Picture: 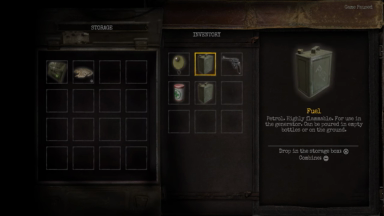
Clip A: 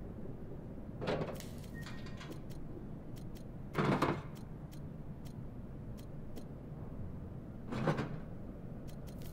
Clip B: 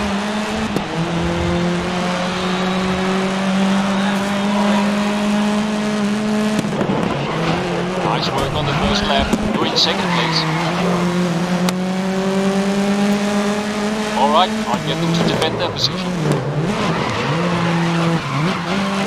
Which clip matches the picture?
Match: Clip A